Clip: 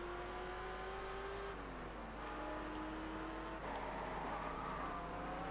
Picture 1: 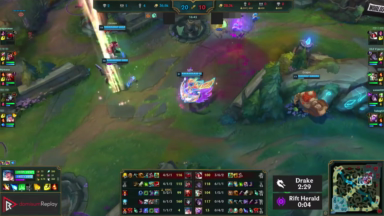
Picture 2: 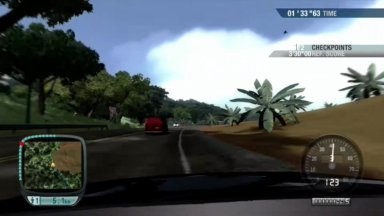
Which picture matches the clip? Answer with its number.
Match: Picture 2